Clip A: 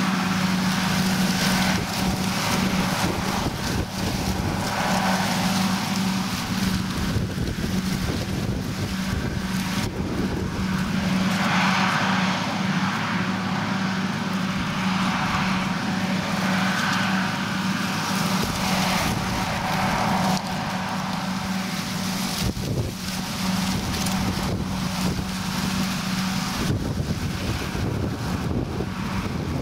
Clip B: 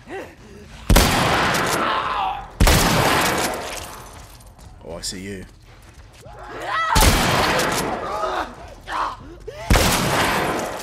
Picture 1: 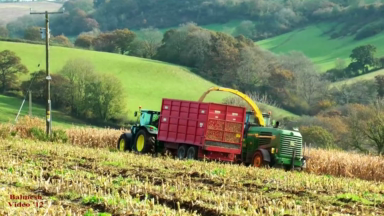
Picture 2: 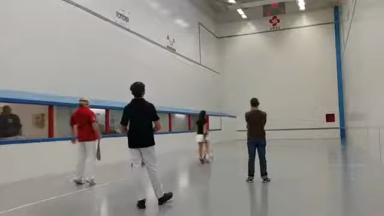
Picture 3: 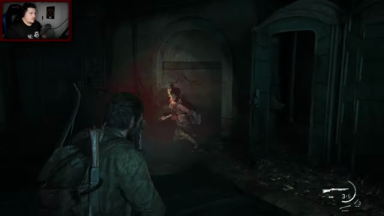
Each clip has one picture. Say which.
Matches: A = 1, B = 3